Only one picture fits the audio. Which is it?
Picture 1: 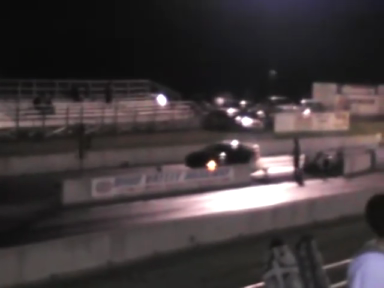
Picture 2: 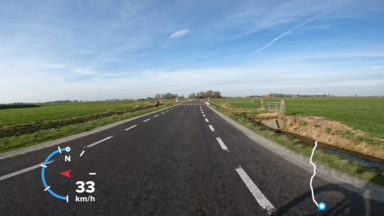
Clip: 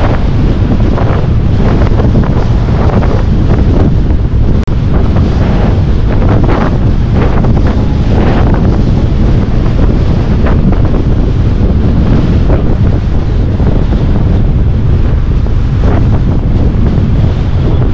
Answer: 2